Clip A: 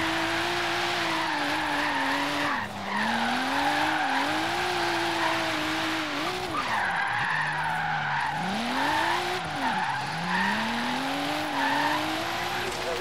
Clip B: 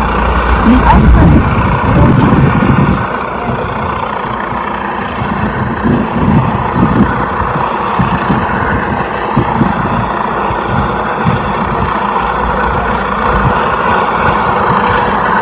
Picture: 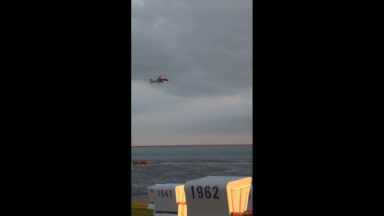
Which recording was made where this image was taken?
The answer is B